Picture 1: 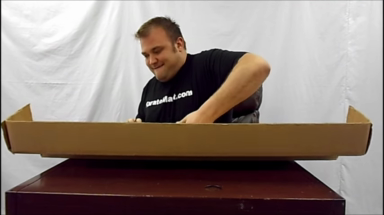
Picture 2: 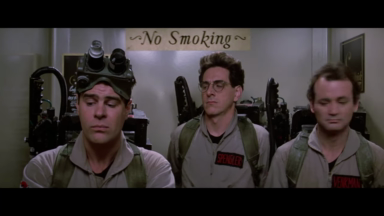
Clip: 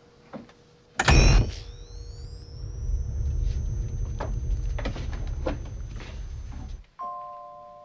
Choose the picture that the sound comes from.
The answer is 2